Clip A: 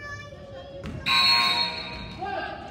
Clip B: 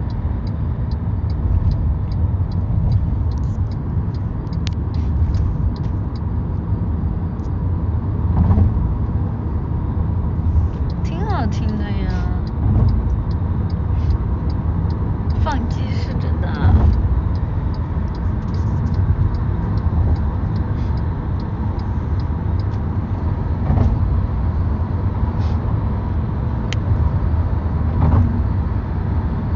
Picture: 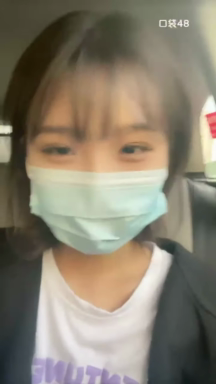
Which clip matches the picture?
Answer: B